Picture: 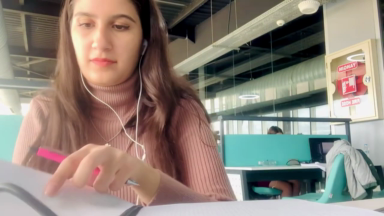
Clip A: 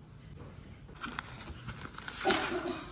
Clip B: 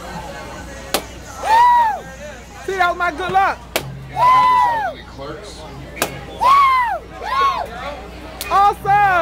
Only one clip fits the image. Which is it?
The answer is A